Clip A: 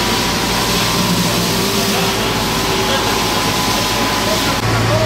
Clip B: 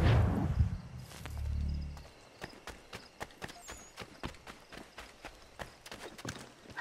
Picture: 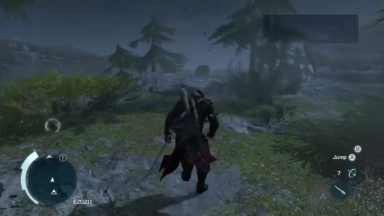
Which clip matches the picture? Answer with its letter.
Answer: B